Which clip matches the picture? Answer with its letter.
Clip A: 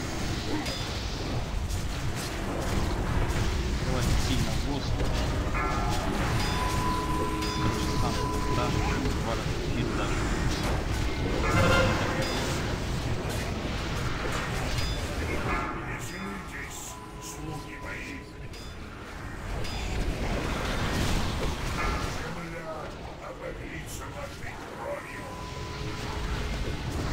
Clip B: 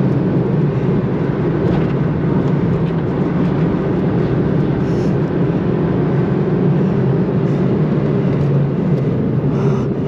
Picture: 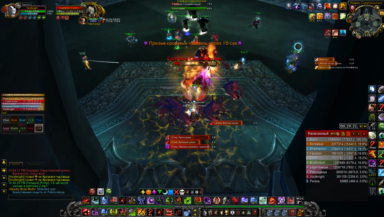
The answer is A